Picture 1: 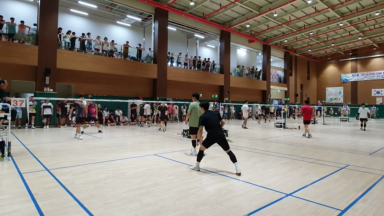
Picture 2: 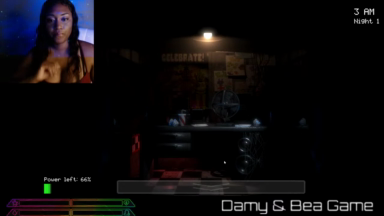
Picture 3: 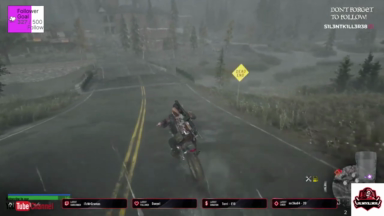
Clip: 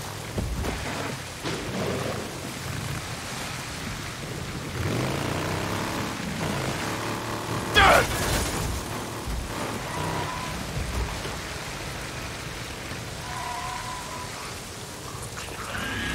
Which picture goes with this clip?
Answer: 3